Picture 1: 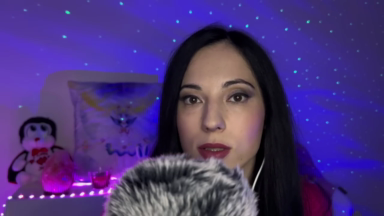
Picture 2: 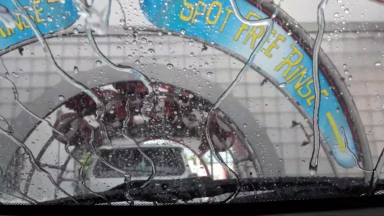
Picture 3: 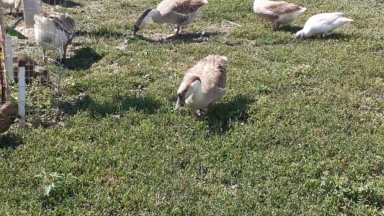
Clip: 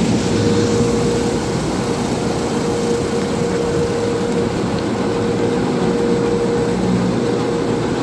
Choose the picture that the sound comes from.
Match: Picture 2